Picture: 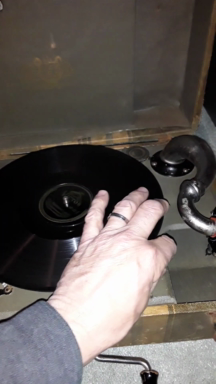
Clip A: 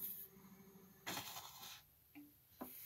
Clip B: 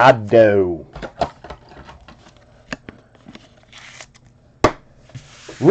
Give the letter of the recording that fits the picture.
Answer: A